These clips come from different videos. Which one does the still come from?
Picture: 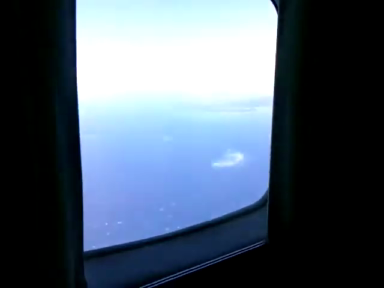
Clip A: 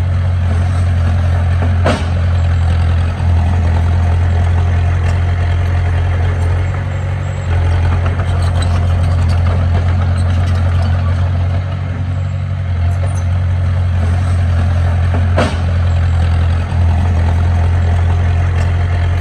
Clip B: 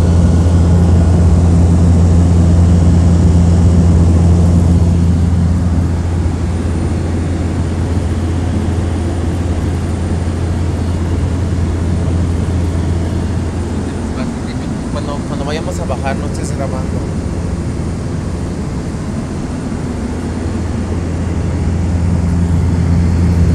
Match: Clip B